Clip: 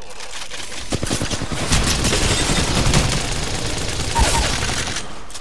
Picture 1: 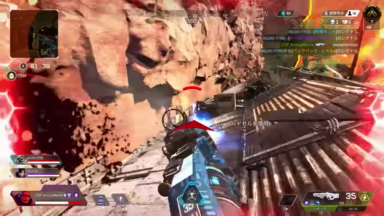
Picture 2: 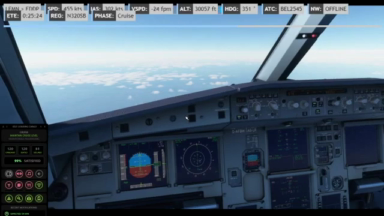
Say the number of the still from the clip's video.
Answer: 1